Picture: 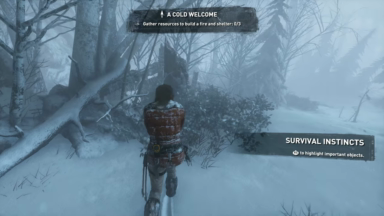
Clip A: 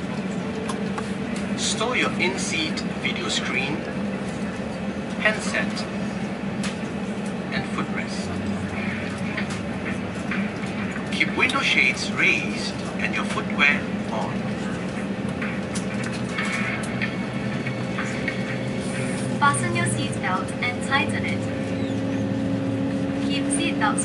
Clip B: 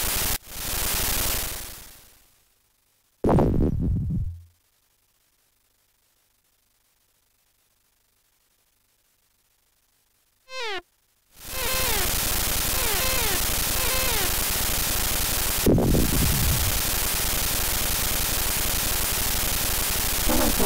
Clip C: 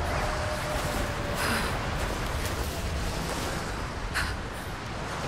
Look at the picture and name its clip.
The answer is C